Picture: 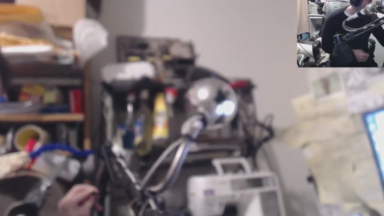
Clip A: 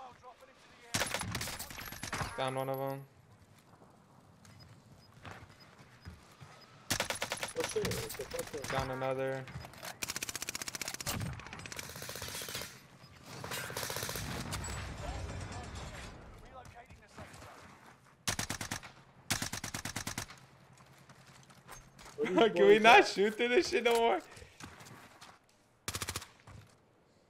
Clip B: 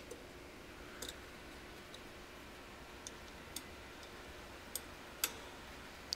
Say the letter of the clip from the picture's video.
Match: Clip B